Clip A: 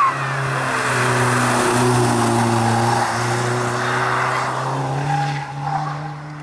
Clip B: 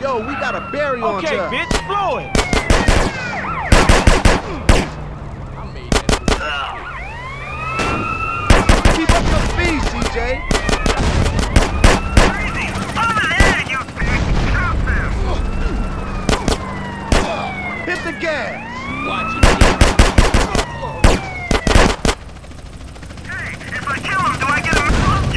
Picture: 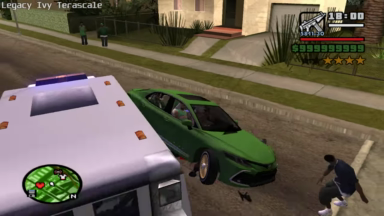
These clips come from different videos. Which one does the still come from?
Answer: B